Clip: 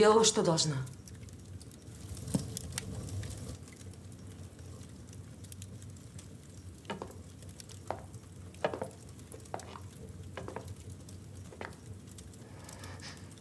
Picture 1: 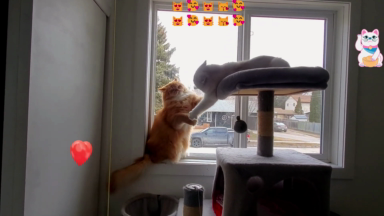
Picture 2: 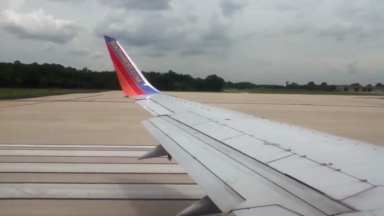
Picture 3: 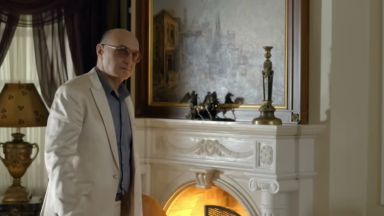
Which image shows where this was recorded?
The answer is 3